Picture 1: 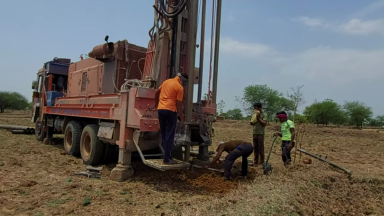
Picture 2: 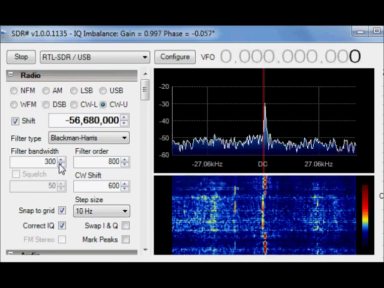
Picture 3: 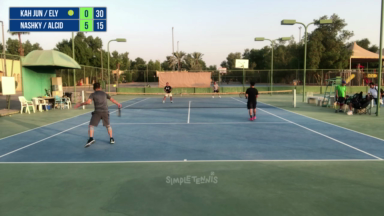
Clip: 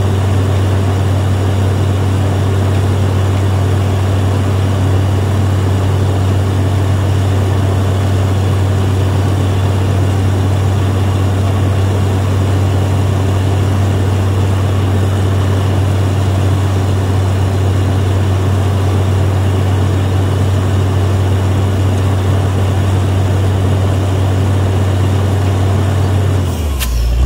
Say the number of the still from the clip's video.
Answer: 1